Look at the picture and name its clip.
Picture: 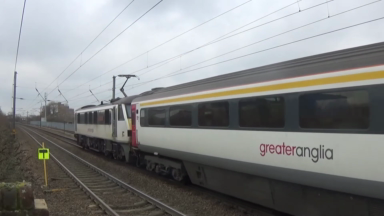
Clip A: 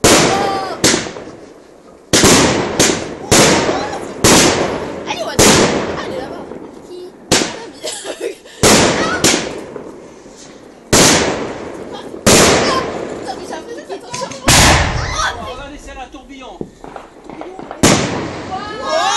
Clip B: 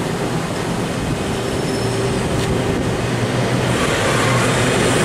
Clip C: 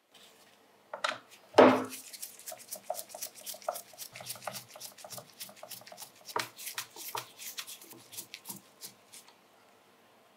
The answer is B